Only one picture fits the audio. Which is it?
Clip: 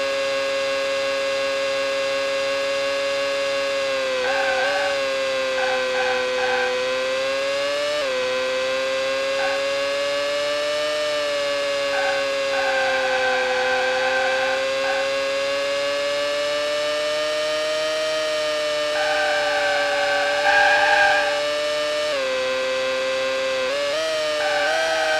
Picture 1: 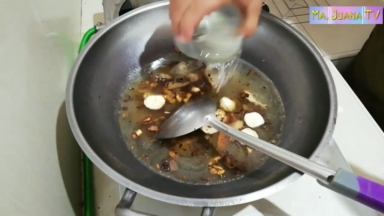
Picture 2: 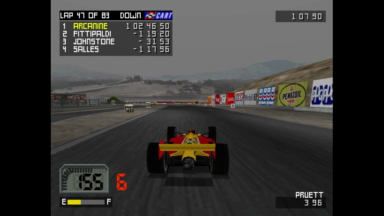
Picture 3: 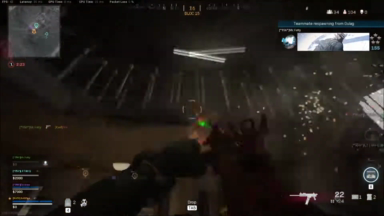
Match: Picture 2